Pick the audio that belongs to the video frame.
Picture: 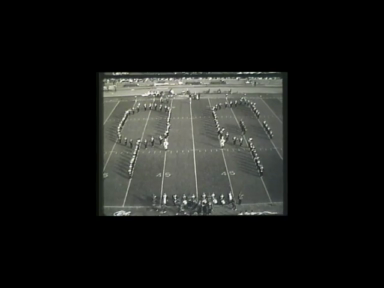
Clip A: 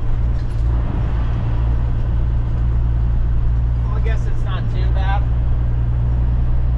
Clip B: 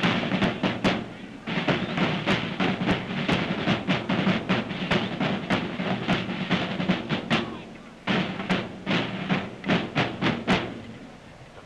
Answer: B